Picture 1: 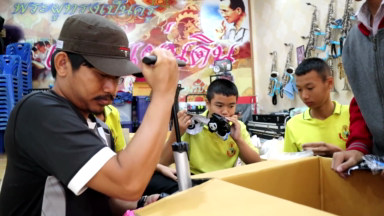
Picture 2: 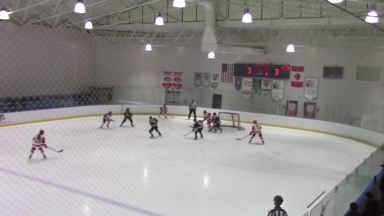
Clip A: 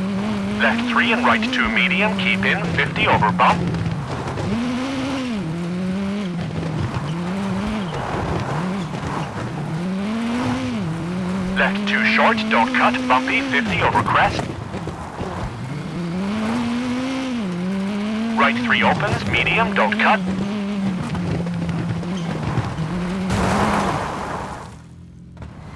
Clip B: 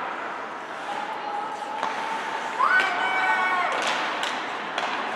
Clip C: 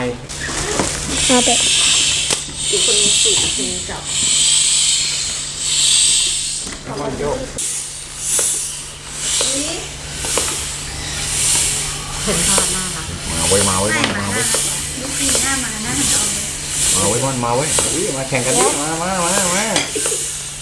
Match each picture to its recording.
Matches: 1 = C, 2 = B